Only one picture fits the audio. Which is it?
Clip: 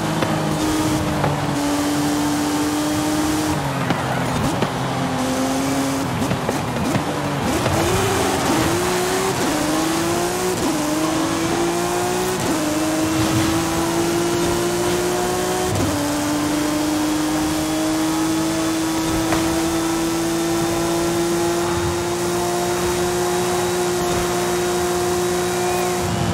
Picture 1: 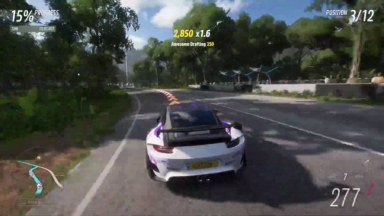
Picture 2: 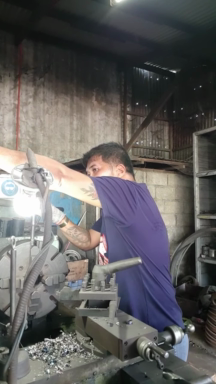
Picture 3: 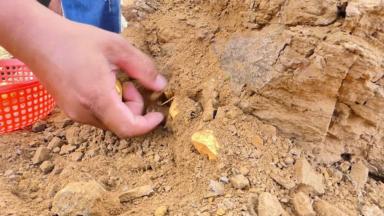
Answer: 1